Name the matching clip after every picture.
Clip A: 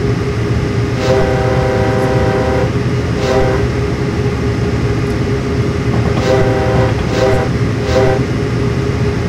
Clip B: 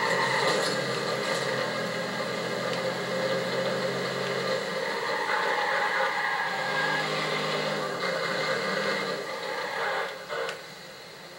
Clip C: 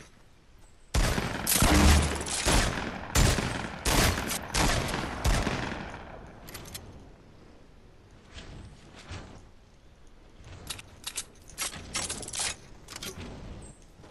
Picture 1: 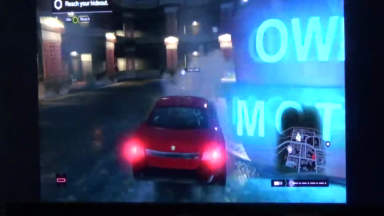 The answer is B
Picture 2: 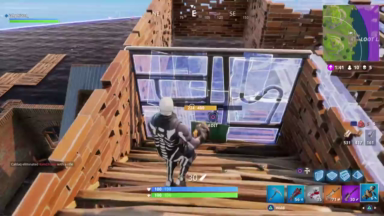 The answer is C